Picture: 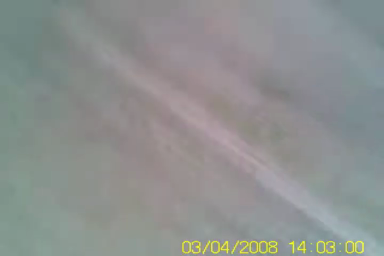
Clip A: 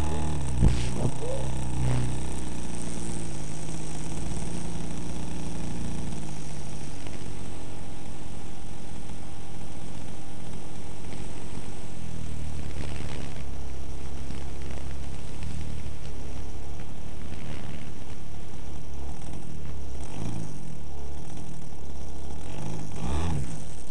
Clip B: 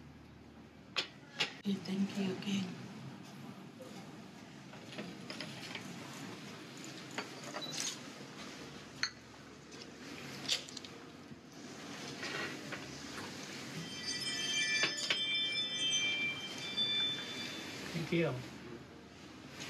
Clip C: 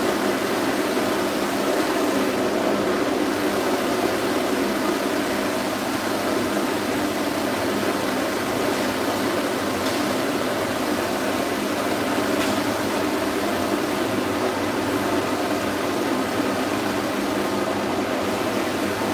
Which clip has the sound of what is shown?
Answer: A